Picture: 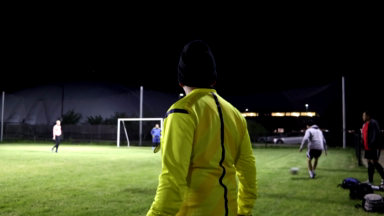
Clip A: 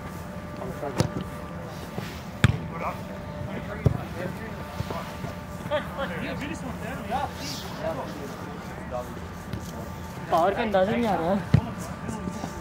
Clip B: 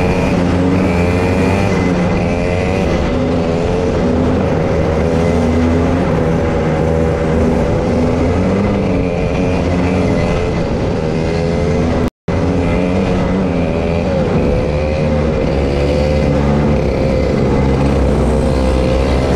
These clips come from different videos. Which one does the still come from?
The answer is A